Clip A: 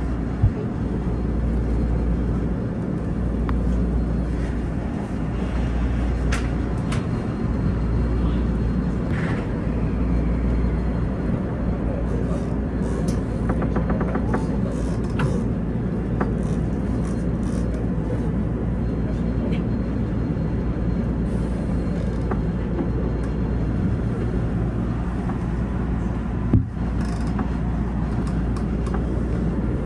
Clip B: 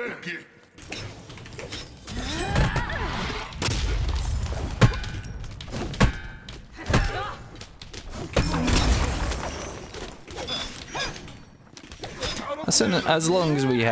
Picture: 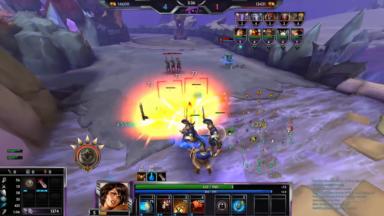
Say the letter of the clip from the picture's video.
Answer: B